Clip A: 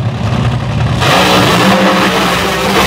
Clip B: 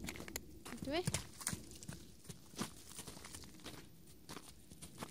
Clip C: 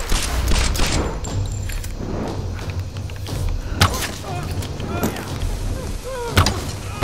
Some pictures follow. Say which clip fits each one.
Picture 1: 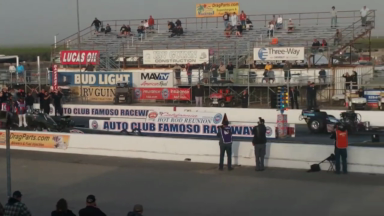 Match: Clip A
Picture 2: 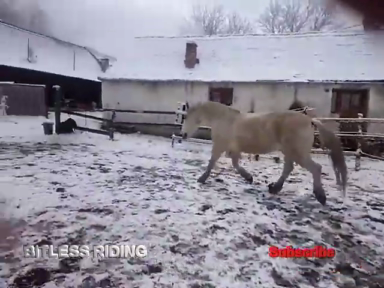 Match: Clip B